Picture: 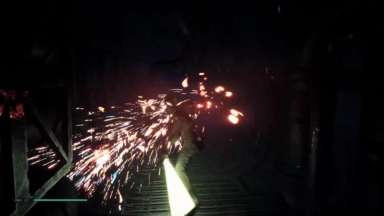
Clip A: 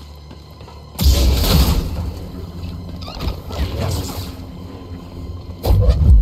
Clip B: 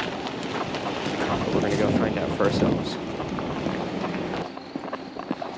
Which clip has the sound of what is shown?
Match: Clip A